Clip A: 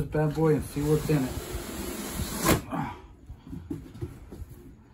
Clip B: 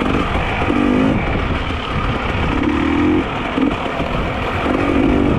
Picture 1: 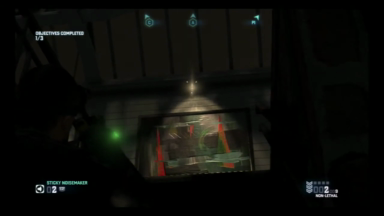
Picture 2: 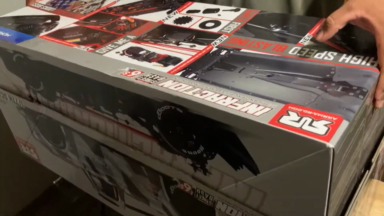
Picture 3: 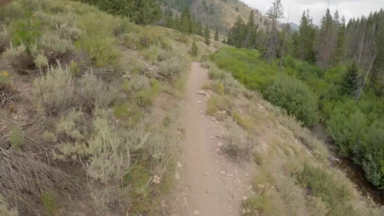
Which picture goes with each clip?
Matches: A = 2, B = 3